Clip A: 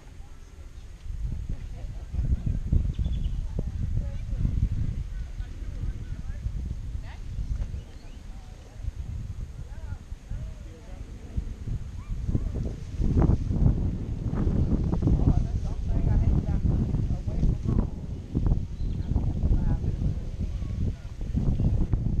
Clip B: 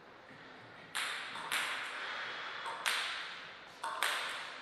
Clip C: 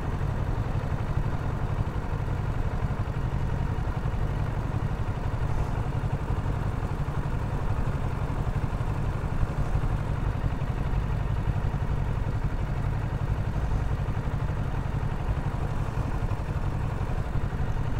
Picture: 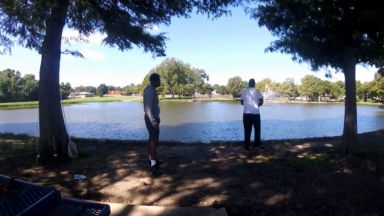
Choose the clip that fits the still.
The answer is A